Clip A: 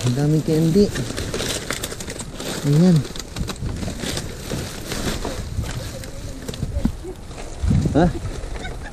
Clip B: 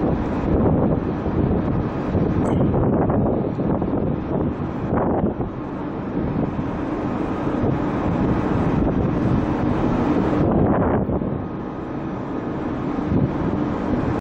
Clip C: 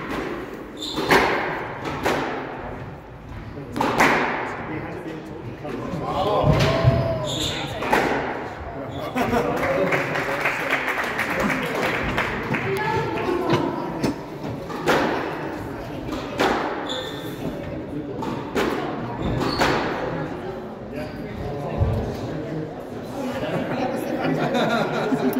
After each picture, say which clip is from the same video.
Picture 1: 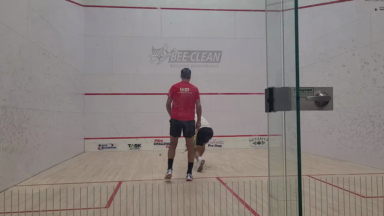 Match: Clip C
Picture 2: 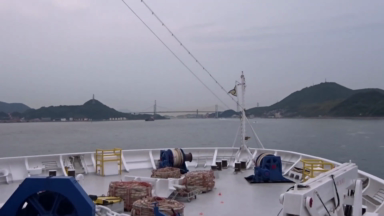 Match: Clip B